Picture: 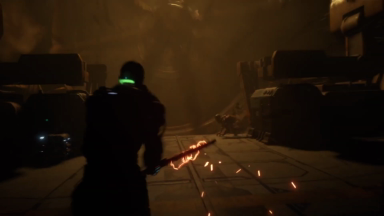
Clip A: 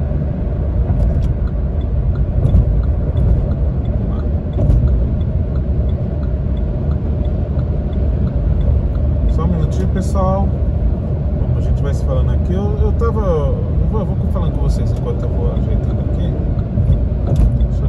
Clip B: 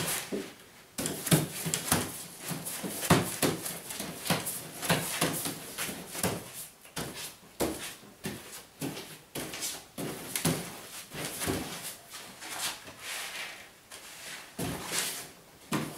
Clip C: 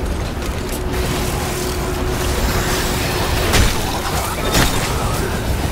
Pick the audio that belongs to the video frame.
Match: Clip C